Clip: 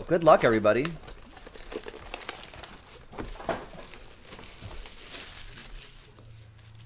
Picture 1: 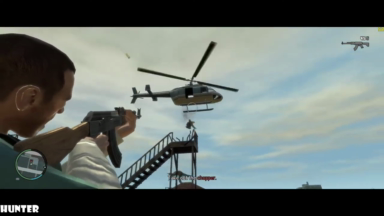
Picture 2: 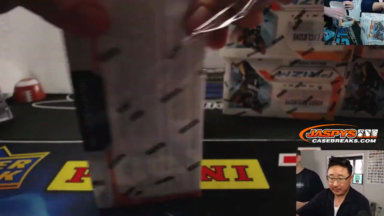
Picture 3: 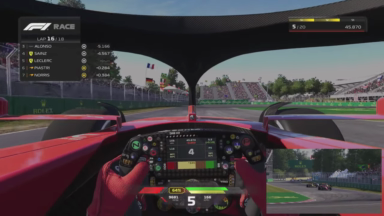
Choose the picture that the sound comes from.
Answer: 2